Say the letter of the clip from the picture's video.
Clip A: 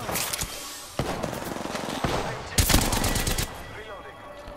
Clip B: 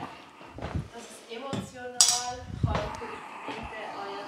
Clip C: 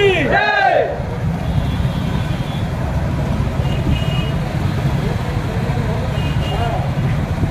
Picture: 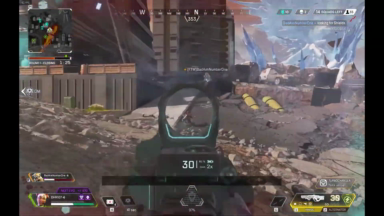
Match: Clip A